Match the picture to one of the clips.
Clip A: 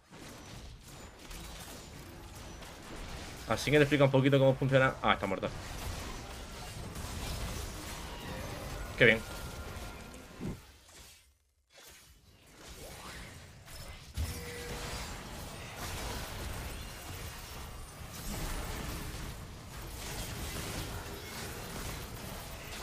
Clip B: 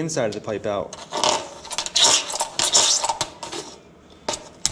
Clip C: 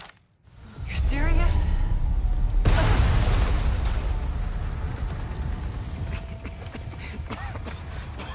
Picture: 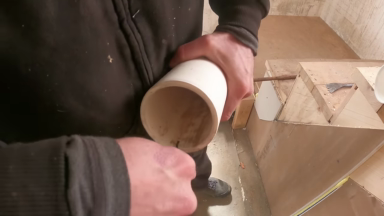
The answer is B